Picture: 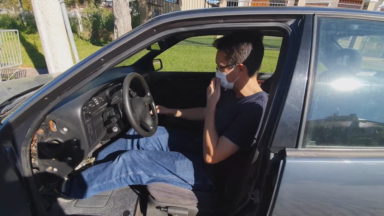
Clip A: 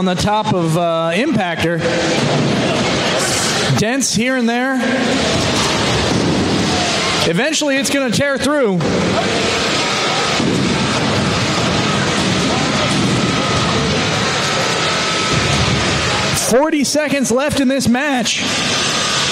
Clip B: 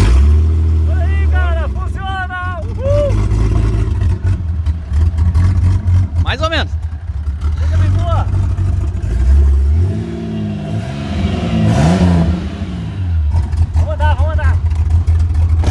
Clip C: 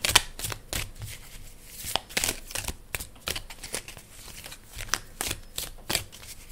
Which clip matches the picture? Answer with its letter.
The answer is B